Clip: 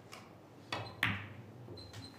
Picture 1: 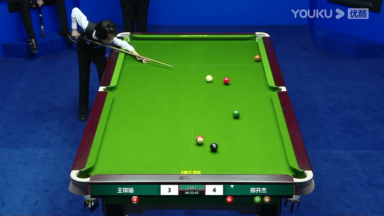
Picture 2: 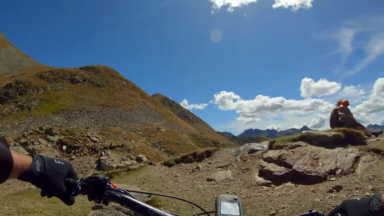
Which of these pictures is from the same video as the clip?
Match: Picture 1